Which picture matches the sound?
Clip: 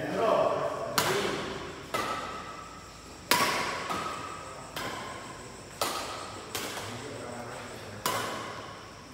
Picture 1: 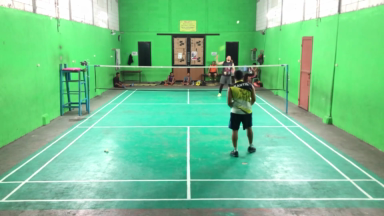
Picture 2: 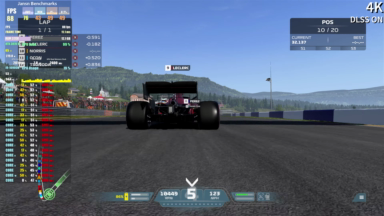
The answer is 1